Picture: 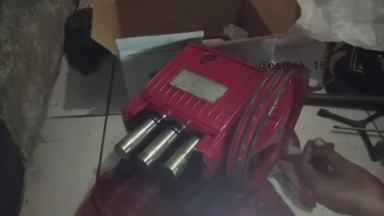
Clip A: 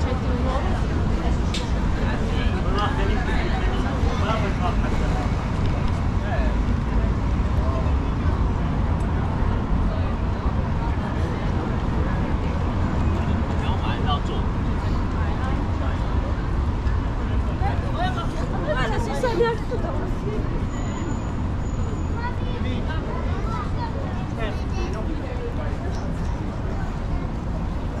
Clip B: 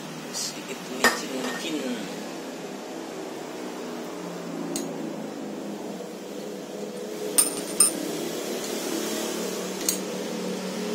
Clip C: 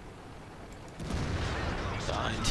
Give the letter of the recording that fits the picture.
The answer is B